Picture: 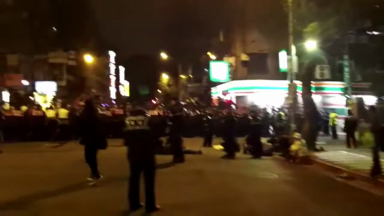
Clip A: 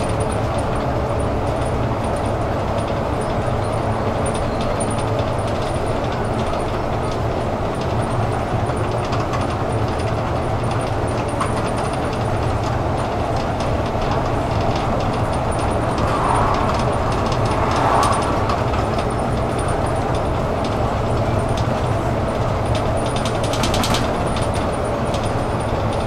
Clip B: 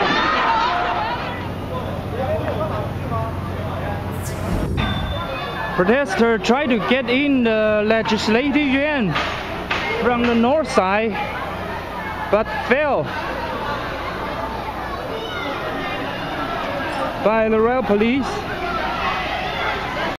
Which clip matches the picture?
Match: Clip B